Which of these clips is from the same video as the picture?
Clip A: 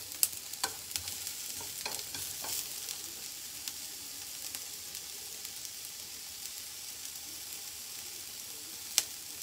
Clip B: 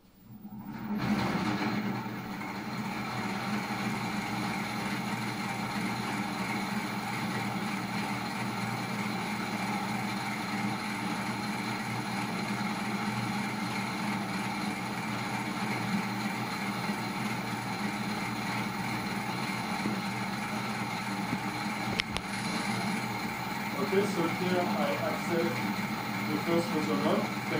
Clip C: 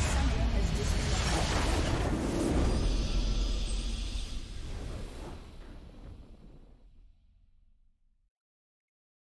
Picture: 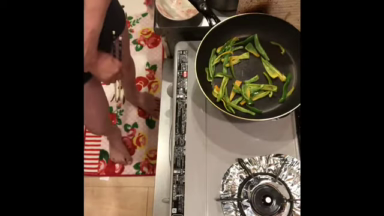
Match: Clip A